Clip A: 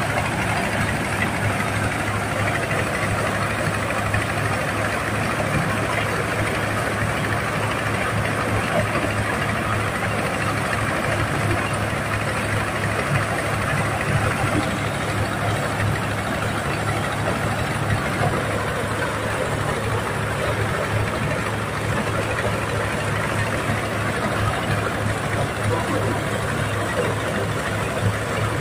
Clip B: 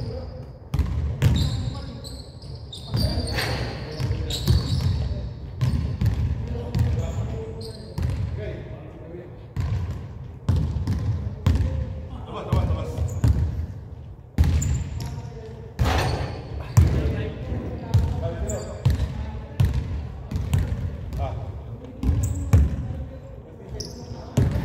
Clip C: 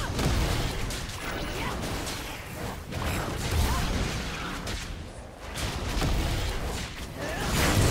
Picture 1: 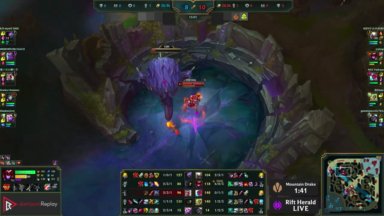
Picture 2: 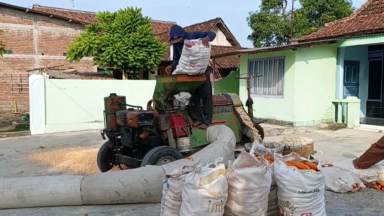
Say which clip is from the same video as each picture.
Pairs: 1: C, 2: A